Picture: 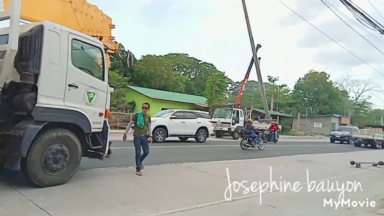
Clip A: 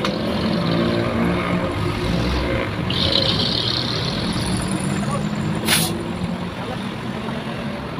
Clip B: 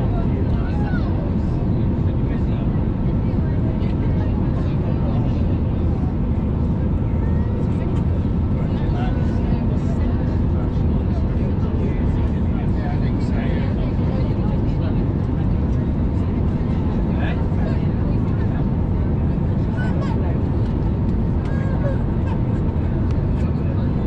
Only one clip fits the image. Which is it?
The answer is A